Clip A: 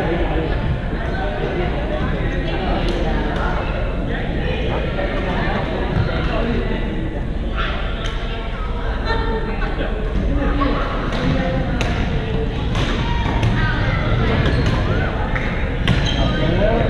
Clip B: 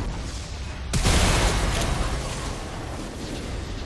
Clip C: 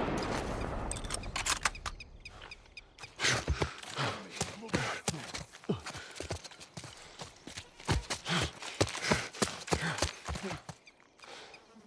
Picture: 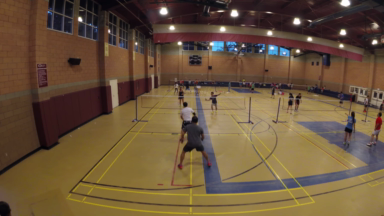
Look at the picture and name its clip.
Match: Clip A